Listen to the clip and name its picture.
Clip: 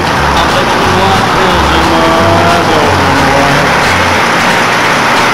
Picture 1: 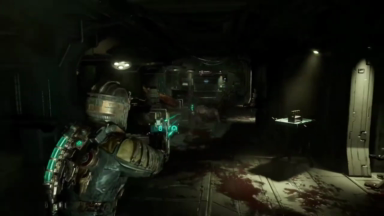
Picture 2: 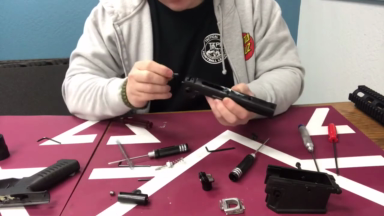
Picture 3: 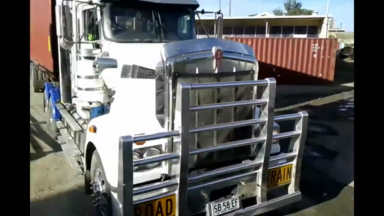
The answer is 3